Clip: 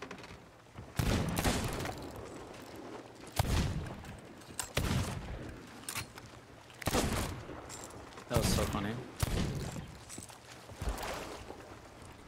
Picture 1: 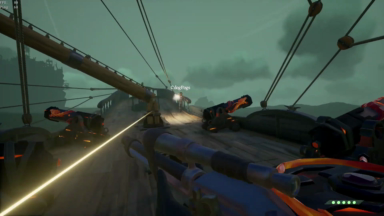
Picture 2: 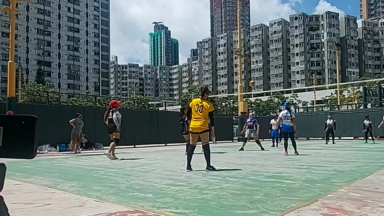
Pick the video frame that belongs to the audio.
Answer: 1